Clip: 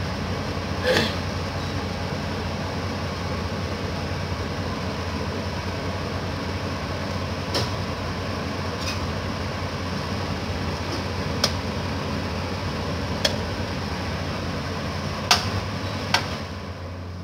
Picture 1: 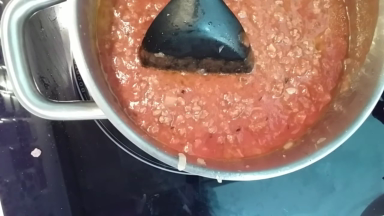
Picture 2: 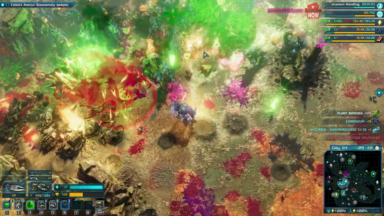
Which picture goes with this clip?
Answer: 1